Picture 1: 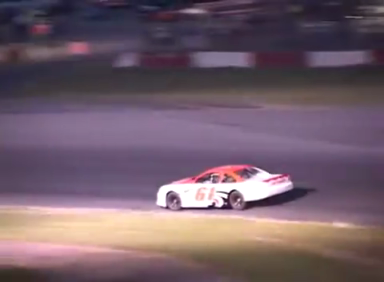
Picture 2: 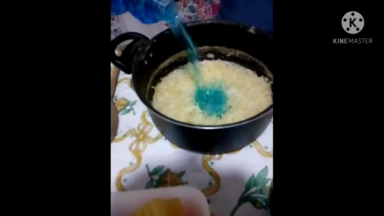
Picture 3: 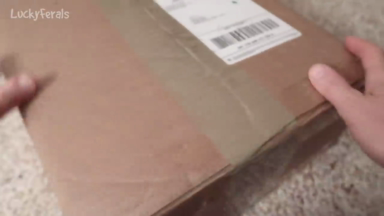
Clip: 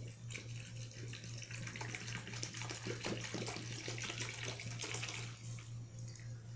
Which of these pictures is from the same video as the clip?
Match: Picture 2